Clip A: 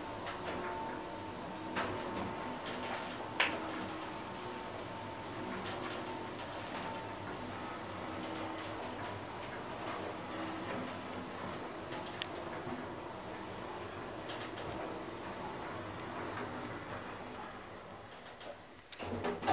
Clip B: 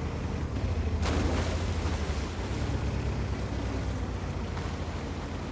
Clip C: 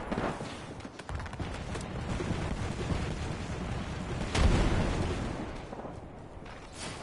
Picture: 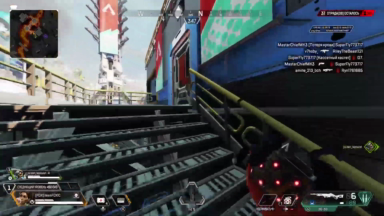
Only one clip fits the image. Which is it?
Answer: C